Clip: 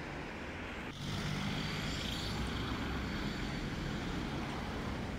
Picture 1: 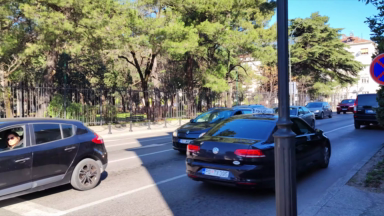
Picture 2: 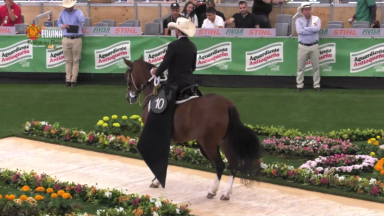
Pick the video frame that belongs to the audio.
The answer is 1